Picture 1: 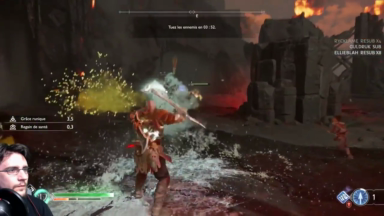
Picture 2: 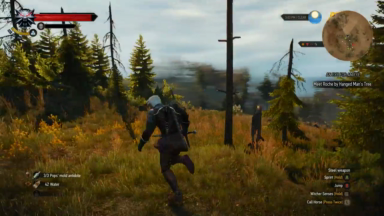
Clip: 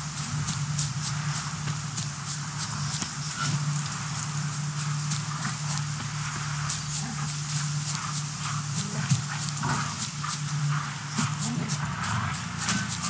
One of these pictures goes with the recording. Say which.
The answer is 2